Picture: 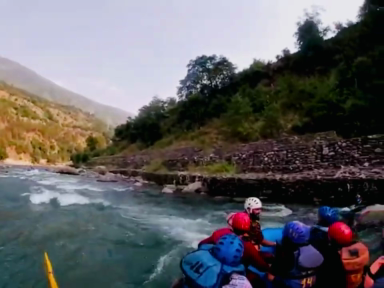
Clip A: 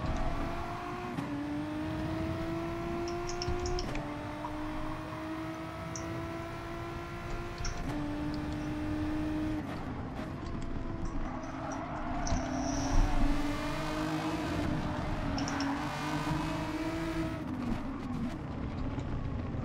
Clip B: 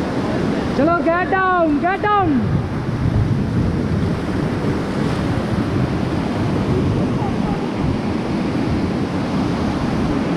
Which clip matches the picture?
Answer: B